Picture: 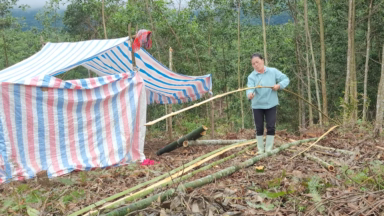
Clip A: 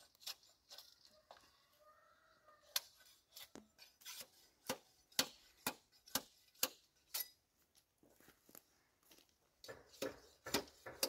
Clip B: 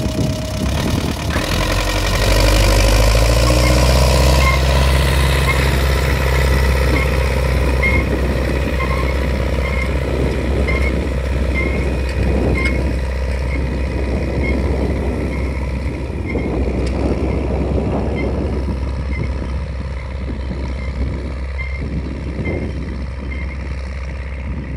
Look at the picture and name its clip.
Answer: A